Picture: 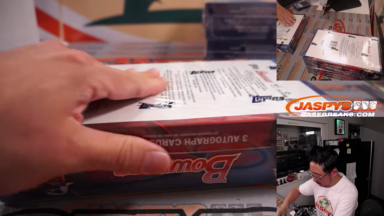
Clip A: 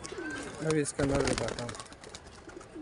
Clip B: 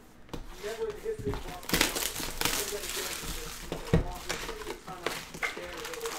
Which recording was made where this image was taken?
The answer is B